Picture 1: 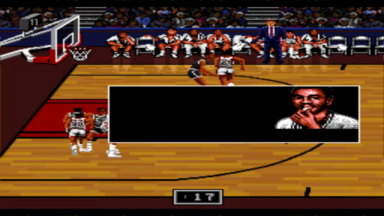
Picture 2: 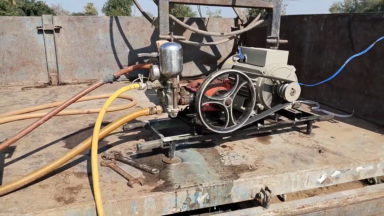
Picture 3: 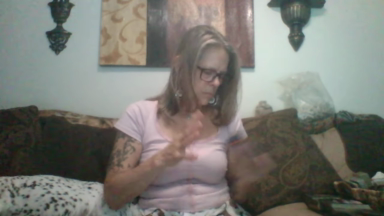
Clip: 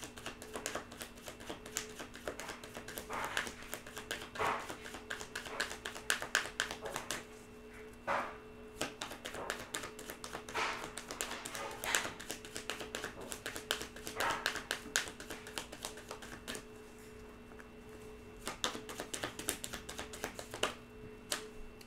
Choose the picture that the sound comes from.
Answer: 3